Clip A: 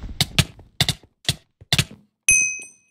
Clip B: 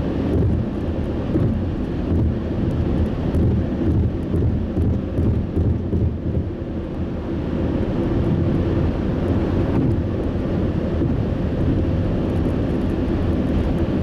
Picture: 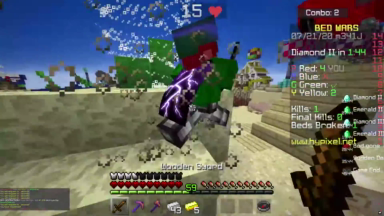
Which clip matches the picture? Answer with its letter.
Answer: A